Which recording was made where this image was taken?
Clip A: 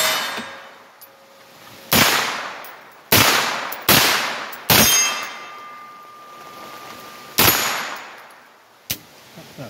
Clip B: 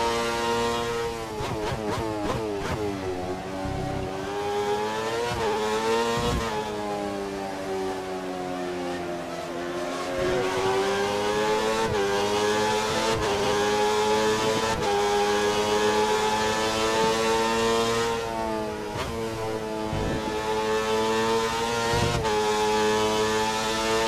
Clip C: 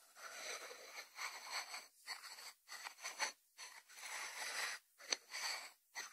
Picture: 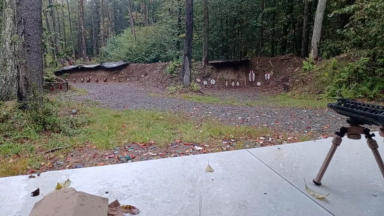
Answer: A